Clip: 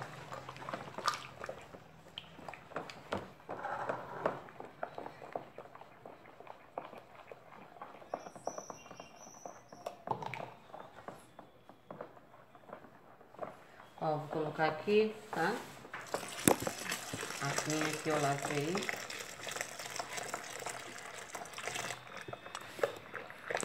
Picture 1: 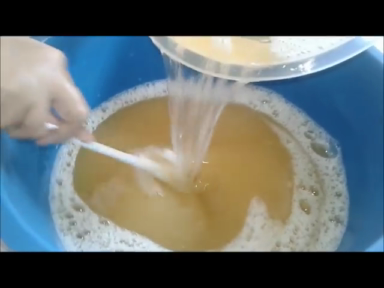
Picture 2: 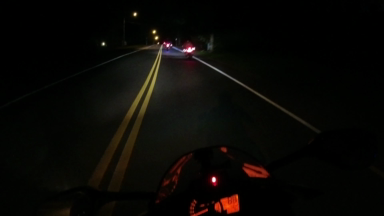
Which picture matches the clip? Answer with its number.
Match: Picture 1